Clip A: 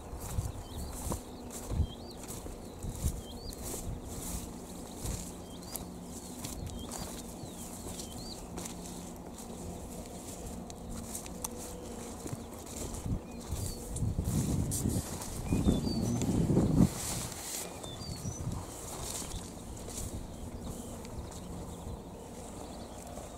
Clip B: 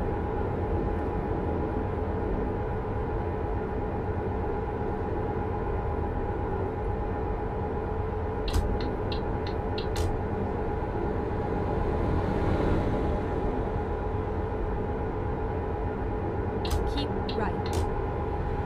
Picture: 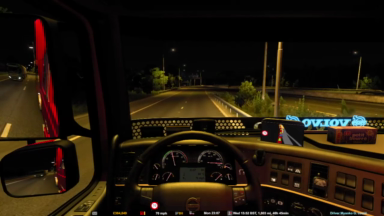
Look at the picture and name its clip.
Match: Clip B